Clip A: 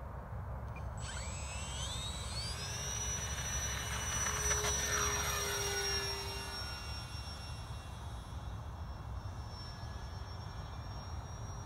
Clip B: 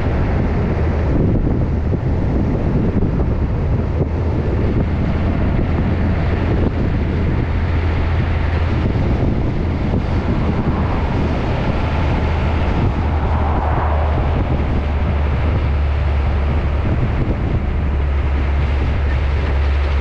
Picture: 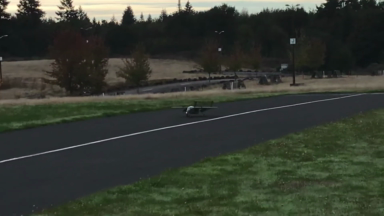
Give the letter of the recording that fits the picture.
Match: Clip A